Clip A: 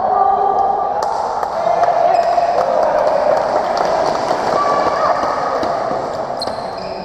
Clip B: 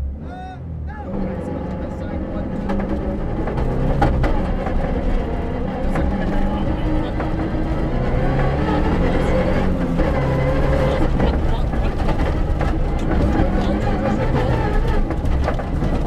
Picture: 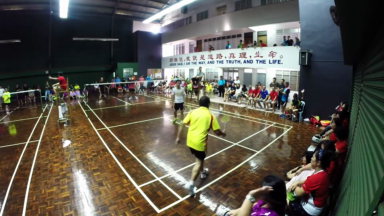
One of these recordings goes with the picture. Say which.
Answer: A